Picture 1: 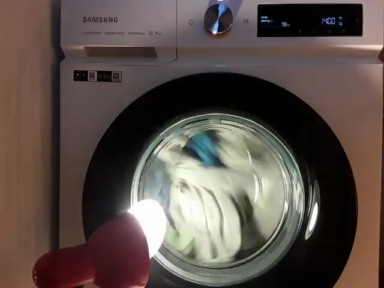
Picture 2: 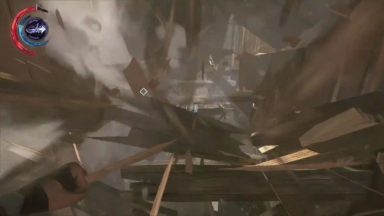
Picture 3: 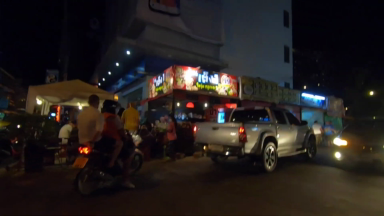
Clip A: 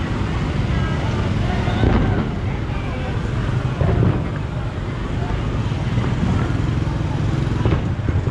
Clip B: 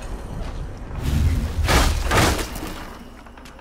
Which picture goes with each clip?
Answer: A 3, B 2